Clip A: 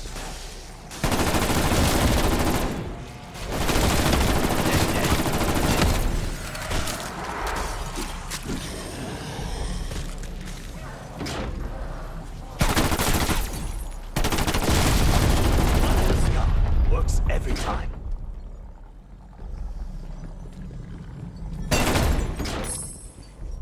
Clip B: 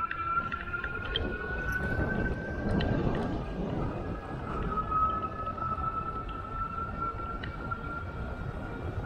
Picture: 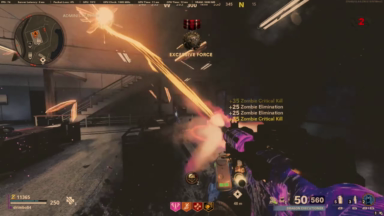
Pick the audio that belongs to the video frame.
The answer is A